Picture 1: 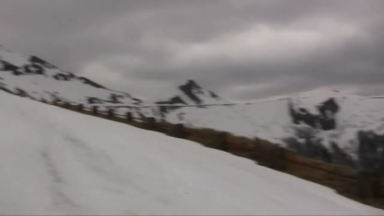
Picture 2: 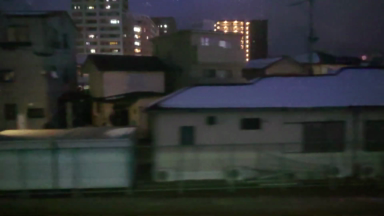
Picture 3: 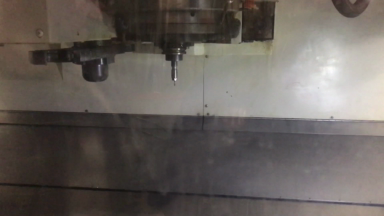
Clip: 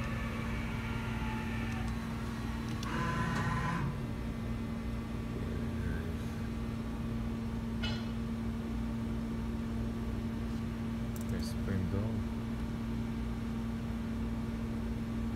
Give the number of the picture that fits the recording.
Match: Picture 3